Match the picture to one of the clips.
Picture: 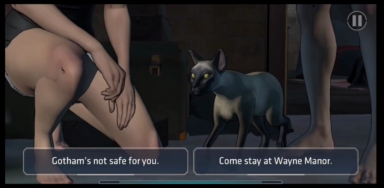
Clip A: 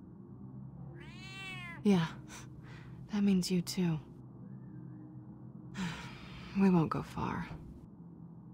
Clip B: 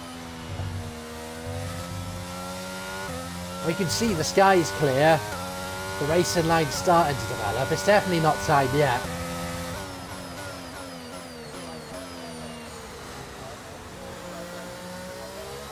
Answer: A